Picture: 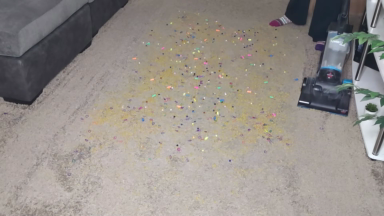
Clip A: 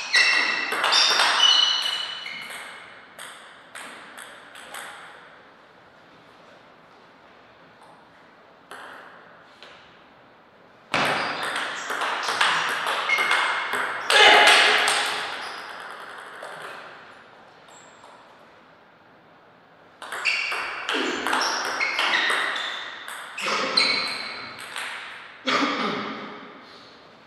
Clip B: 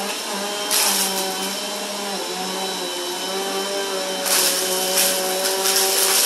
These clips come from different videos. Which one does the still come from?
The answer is B